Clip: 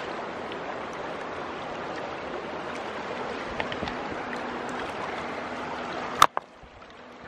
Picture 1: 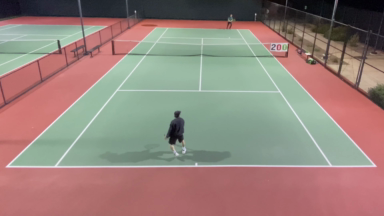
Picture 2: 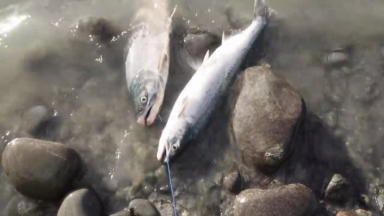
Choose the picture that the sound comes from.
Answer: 2